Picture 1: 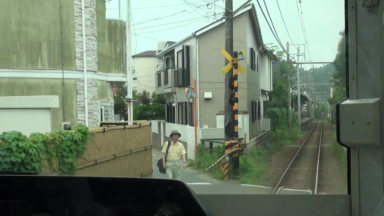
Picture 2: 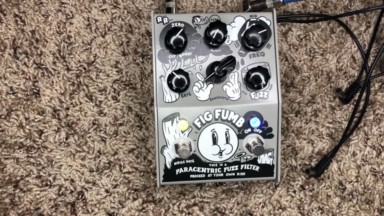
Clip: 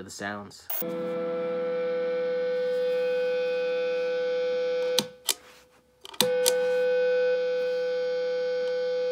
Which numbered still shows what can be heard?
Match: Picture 2